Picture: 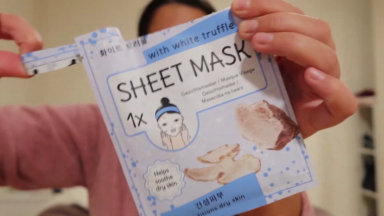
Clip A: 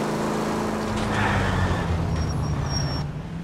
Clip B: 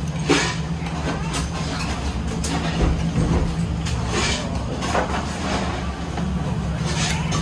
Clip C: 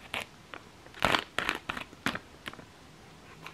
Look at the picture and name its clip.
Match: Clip C